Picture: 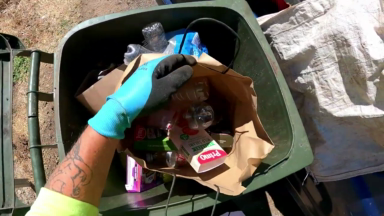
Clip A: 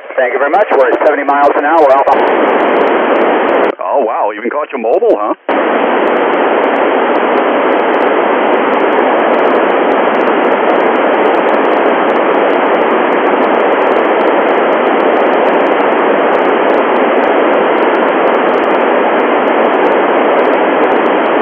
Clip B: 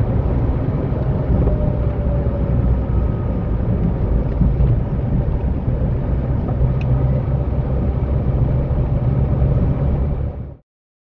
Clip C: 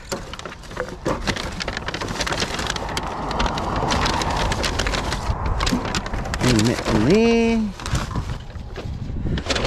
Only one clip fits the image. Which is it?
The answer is C